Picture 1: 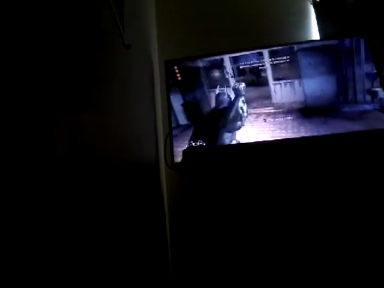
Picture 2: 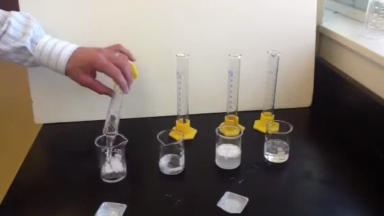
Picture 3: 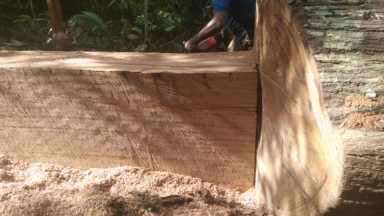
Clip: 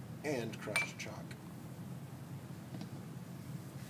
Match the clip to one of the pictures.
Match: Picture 2